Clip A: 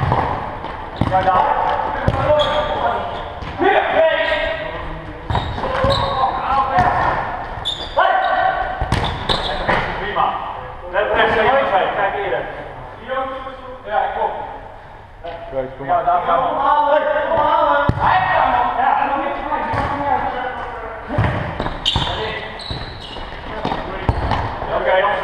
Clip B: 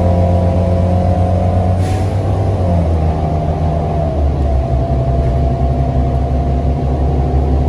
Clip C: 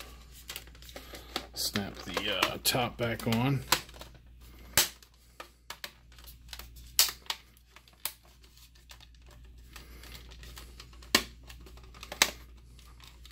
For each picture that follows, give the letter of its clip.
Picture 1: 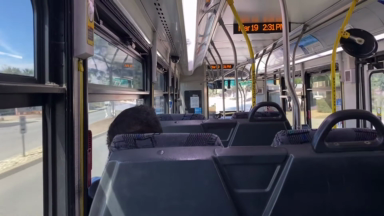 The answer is B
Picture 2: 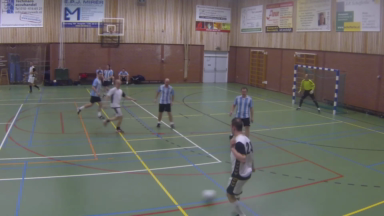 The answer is A